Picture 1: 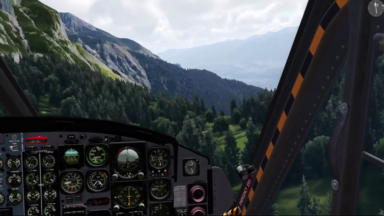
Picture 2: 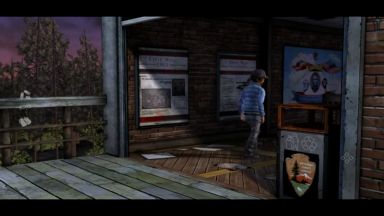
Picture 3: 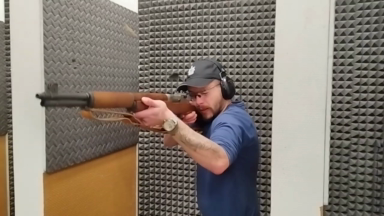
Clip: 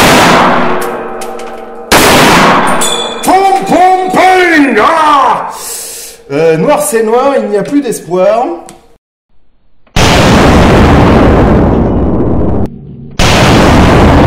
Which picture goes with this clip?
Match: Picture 3